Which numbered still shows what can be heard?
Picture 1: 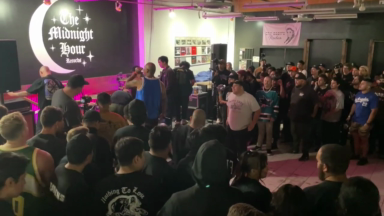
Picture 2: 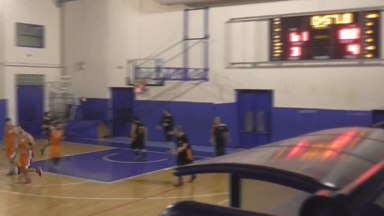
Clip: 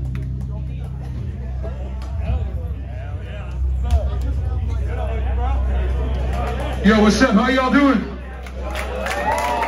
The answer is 1